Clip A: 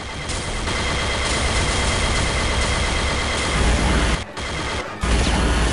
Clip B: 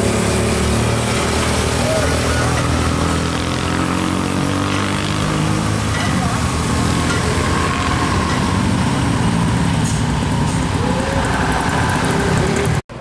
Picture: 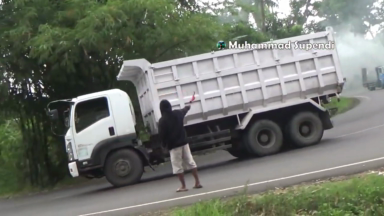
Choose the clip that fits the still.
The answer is B